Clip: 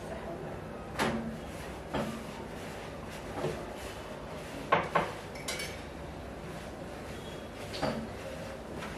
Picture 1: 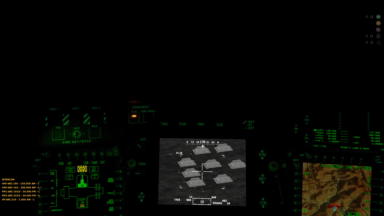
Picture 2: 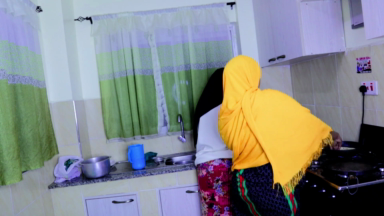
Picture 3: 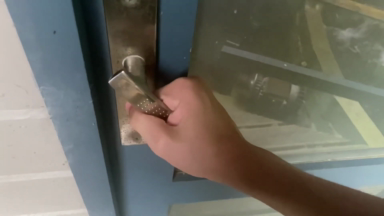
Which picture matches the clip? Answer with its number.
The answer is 2